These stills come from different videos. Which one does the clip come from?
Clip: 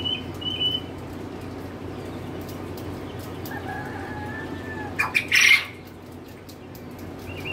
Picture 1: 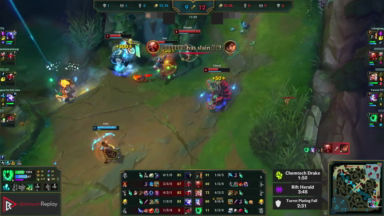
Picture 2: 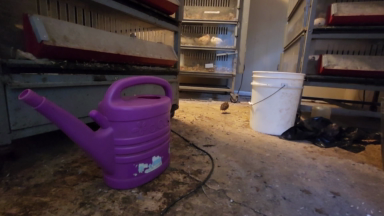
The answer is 2